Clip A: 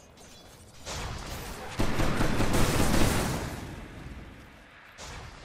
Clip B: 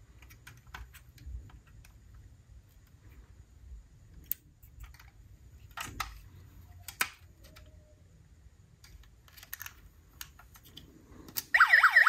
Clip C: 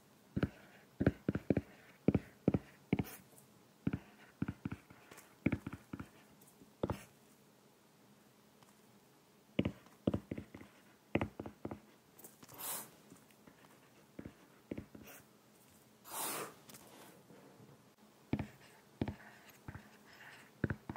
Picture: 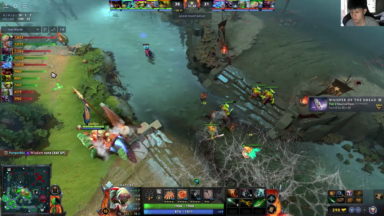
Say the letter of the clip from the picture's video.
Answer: A